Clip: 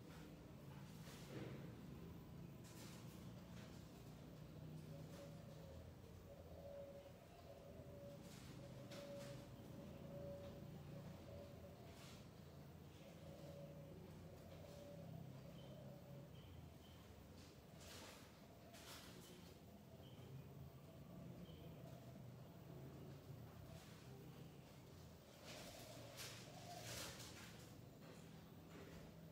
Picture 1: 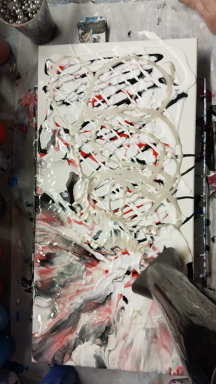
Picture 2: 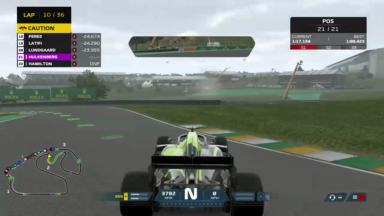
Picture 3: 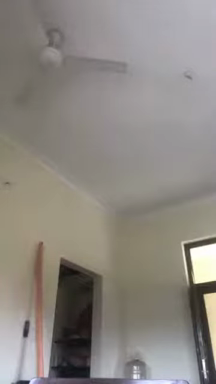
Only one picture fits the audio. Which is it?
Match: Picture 3